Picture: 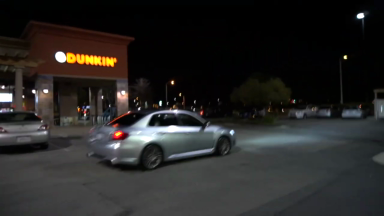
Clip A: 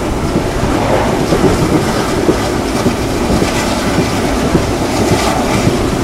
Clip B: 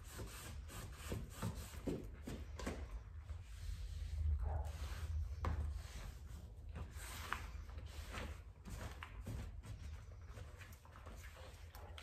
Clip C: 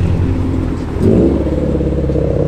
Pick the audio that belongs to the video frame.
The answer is C